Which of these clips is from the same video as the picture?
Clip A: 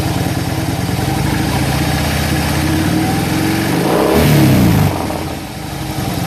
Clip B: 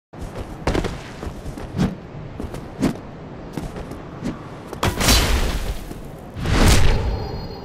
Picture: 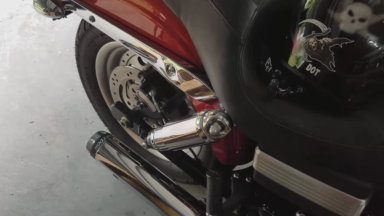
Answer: A